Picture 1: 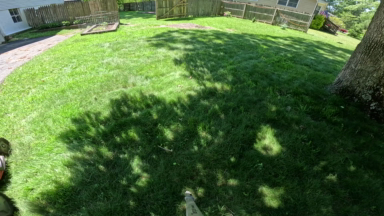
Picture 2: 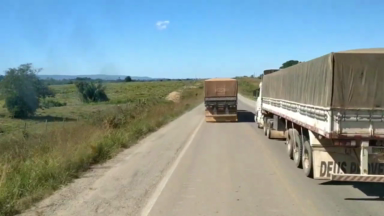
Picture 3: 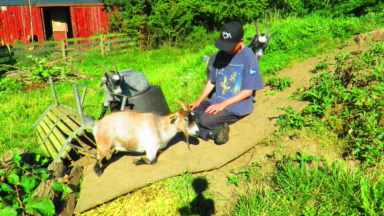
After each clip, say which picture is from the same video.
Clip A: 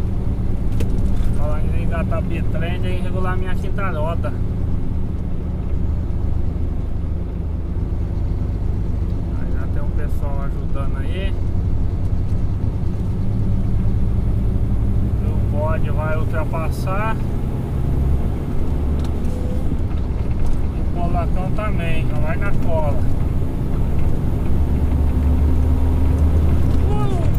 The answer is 2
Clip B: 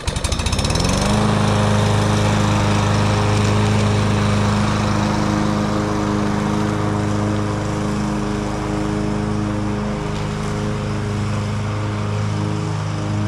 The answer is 1